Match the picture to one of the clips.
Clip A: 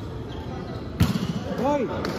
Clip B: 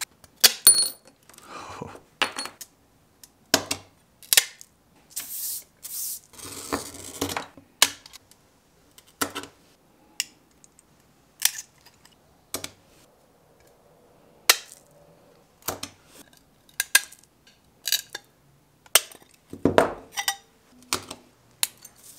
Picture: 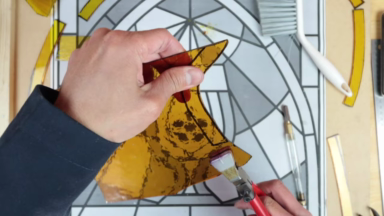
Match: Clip B